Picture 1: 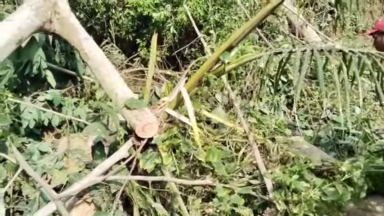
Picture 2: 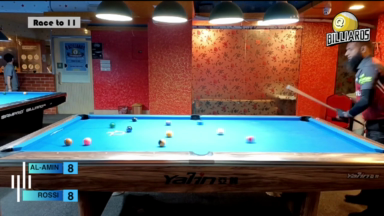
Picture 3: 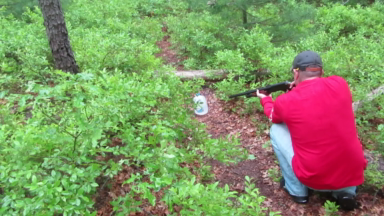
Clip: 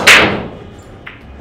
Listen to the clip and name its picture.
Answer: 2